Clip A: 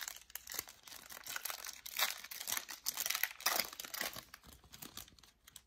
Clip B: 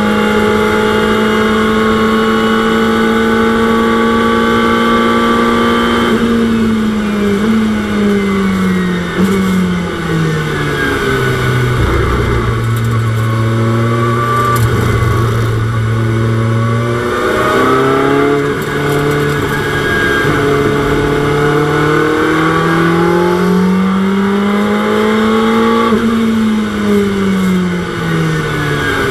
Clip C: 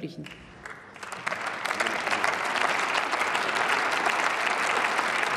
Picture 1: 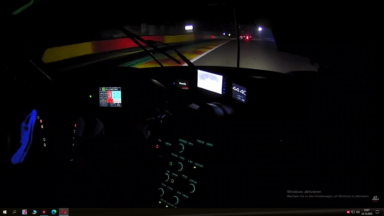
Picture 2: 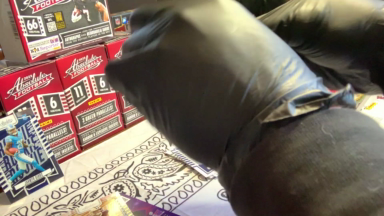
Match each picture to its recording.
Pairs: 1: B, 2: A